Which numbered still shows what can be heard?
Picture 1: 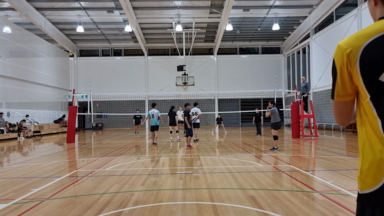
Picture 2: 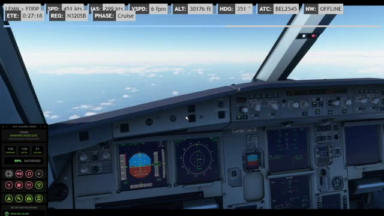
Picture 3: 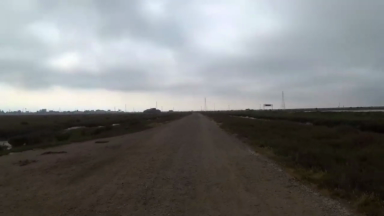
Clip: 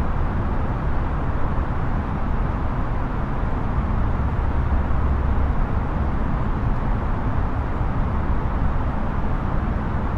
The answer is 2